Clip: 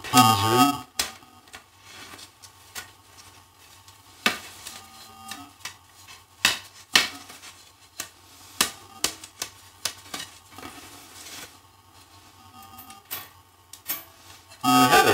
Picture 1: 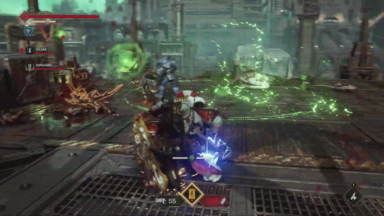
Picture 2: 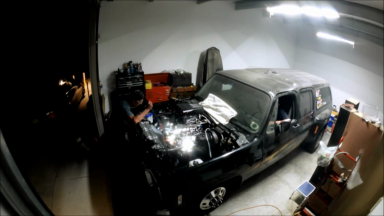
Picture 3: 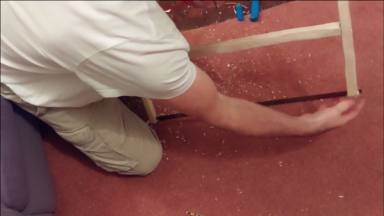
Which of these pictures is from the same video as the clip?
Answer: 3